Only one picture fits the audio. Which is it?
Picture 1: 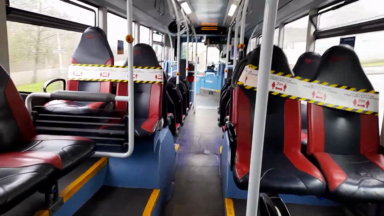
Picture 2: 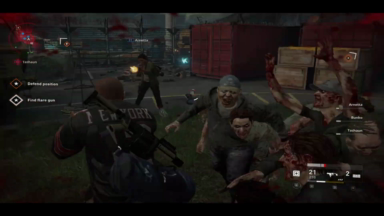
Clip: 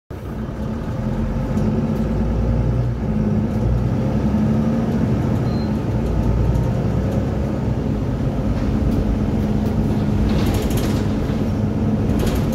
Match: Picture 1